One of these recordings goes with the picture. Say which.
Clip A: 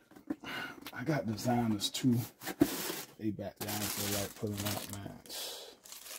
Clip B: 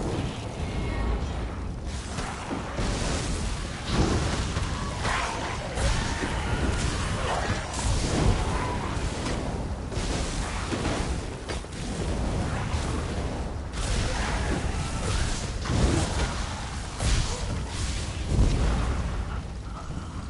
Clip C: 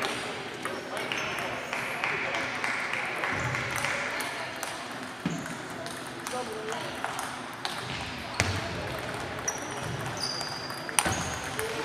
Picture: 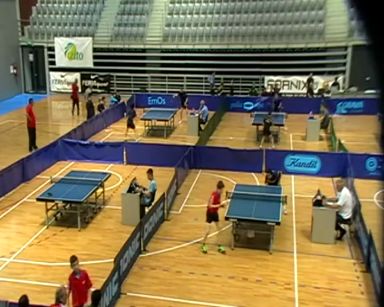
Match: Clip C